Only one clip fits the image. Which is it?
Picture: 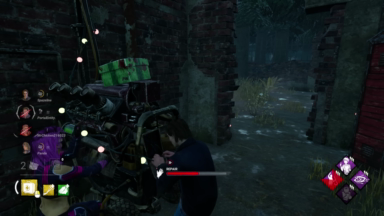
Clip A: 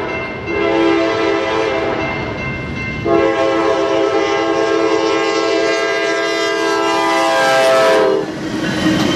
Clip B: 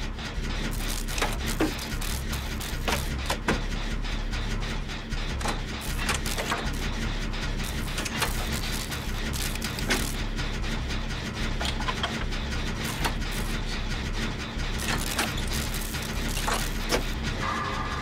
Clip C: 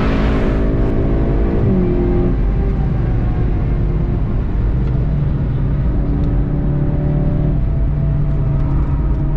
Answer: B